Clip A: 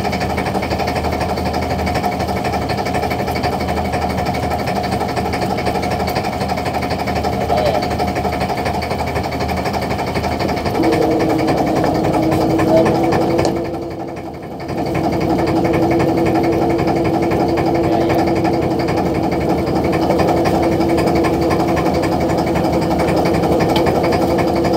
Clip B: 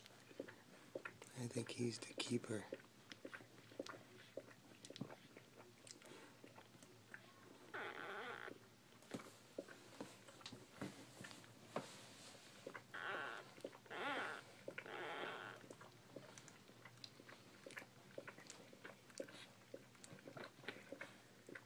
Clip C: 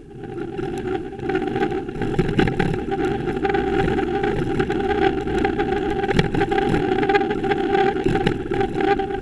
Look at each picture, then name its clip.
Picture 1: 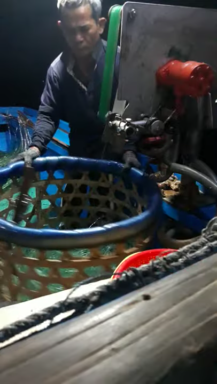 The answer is A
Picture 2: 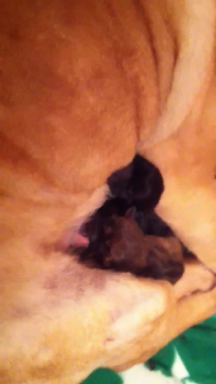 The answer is B